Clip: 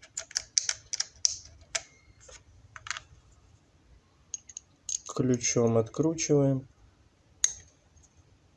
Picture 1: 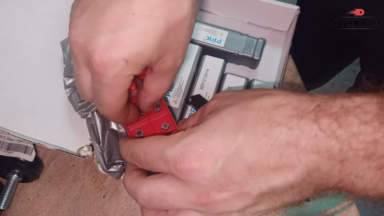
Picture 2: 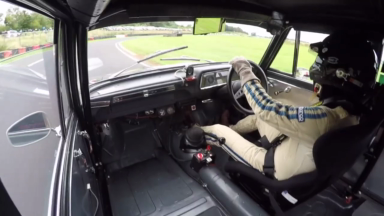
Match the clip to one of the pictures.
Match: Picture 1